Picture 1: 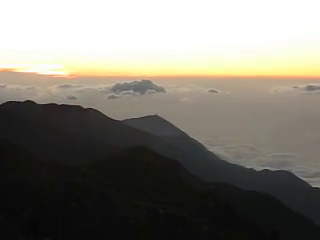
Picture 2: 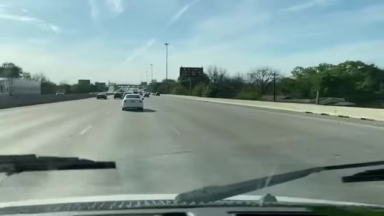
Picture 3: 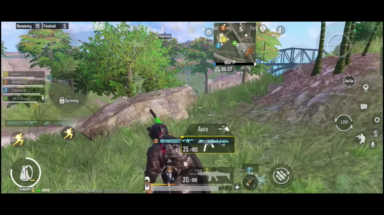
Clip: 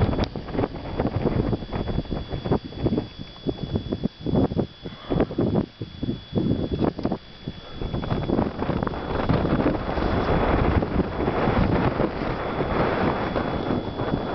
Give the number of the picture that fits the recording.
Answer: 1